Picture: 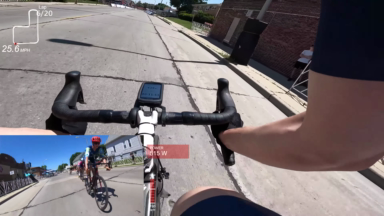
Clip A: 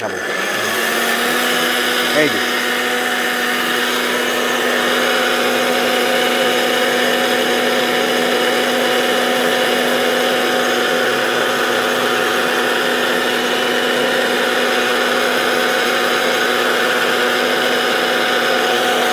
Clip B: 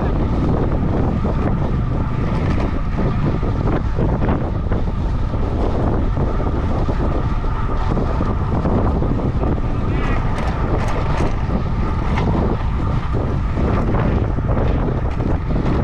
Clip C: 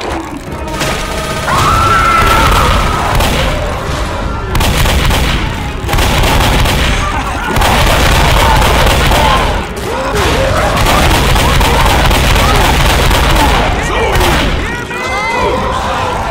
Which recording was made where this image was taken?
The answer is B